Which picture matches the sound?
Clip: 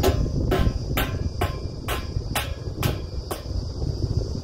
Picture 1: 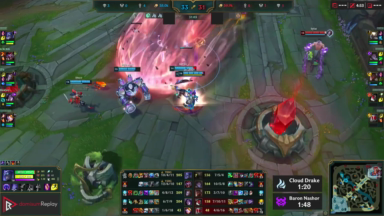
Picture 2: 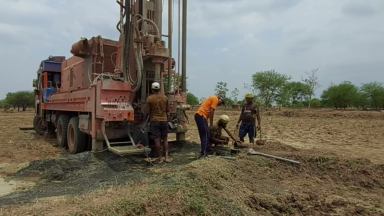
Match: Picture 2